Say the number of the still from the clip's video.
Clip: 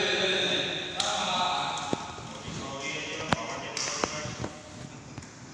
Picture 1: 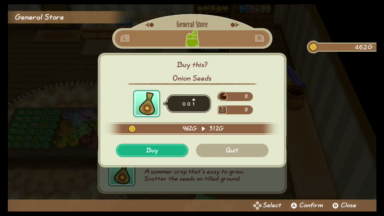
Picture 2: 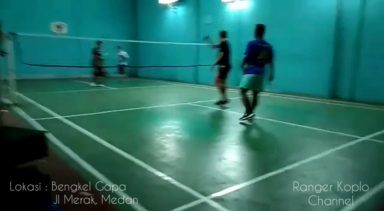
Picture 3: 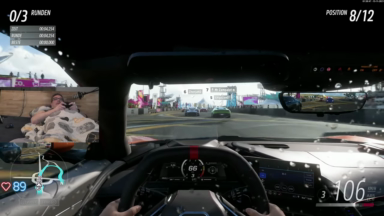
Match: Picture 2